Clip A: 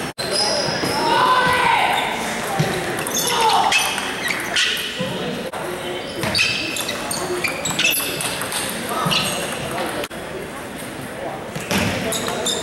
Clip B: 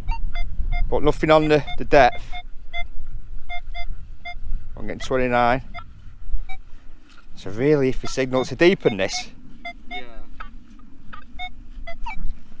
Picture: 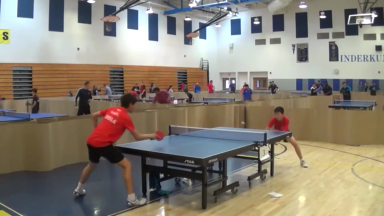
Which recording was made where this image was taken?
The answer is A